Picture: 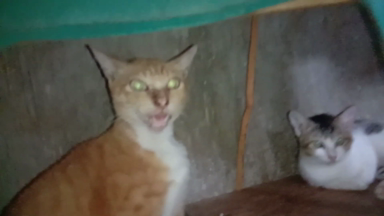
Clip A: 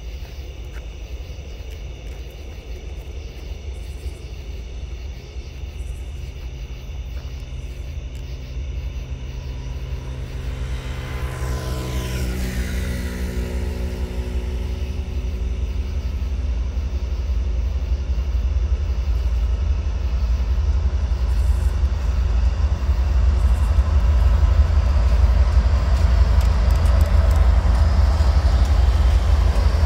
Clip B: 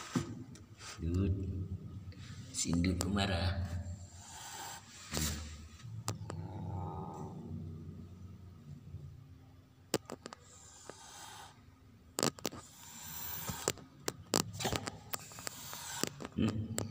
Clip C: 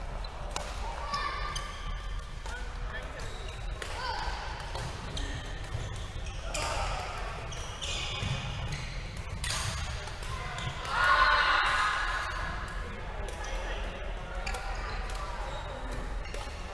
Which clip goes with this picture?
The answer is B